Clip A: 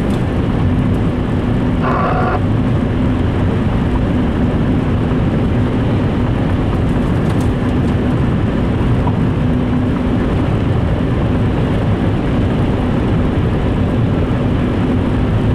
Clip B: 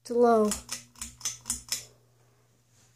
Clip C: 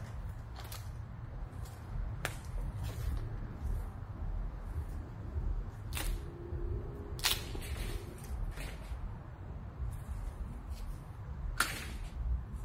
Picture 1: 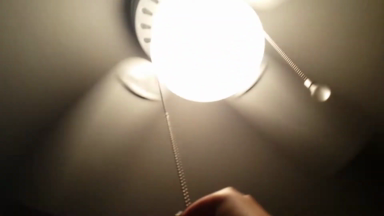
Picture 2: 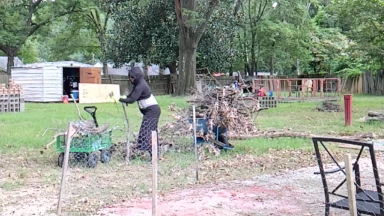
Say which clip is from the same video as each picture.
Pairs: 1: B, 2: C